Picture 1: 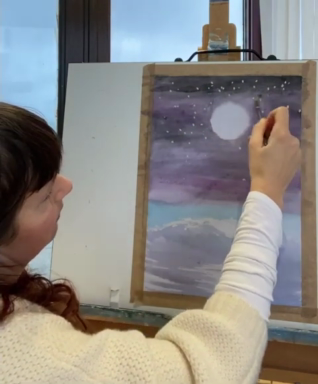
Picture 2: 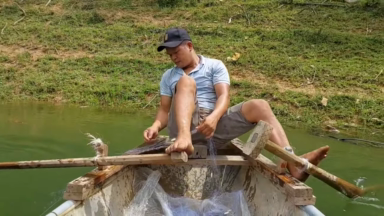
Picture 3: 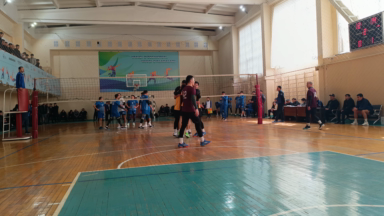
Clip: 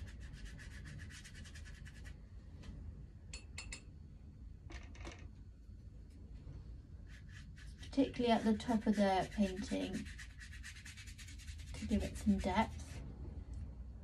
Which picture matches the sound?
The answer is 1